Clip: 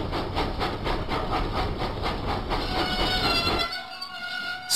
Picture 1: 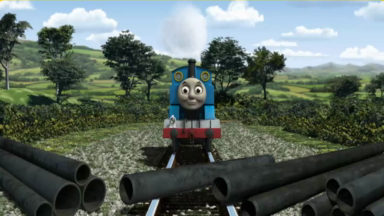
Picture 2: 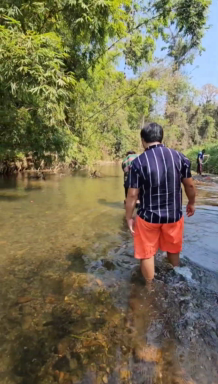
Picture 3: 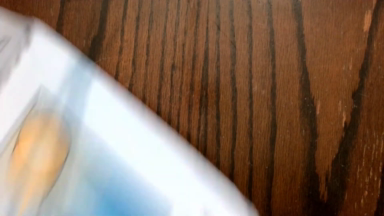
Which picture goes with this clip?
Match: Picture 1